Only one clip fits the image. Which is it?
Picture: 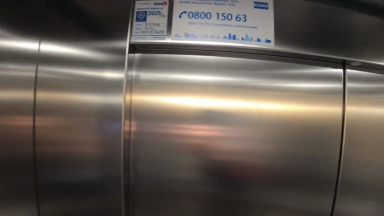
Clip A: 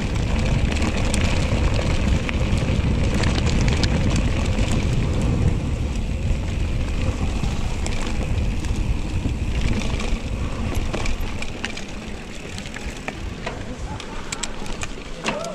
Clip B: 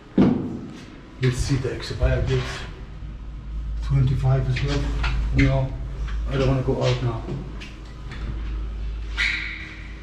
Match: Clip B